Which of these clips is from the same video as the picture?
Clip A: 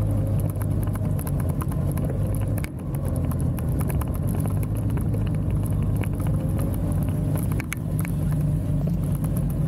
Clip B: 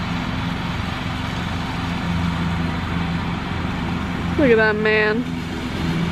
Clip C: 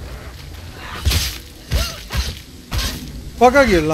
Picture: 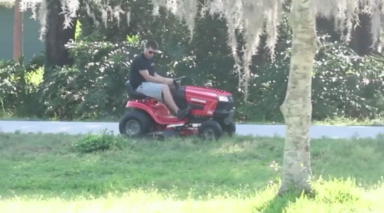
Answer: B